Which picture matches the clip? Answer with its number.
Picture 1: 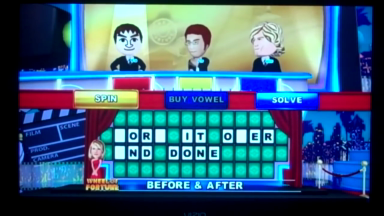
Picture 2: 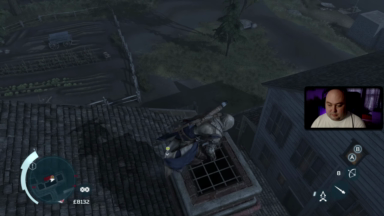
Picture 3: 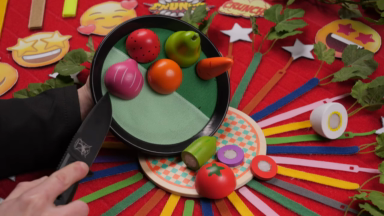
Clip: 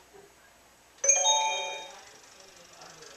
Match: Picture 1